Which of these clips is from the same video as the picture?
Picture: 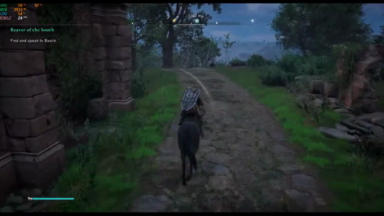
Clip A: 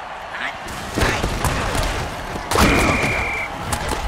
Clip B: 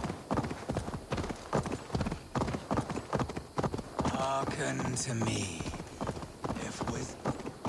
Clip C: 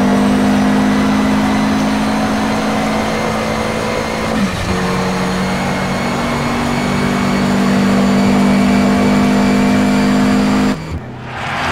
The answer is B